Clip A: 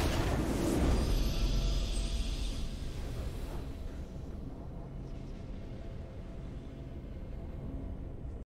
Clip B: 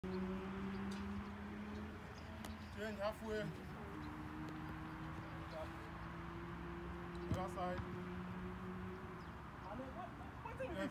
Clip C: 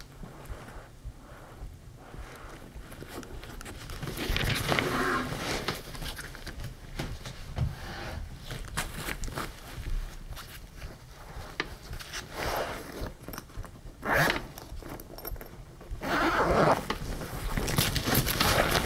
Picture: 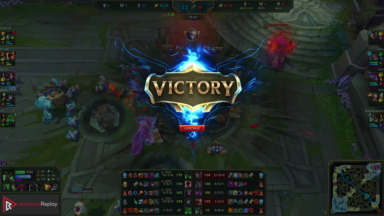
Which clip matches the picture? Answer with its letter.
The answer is A